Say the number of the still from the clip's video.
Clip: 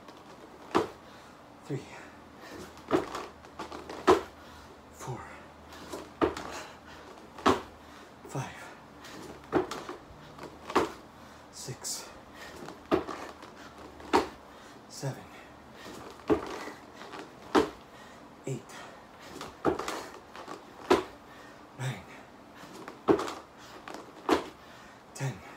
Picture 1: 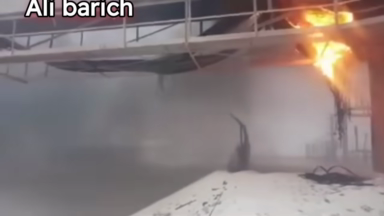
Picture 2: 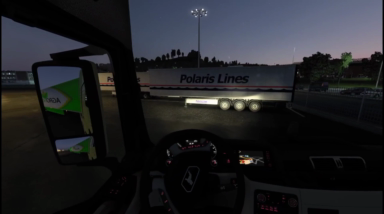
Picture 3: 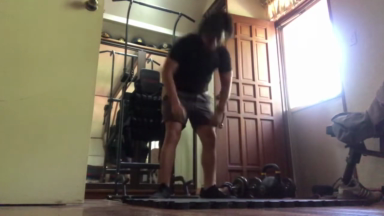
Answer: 3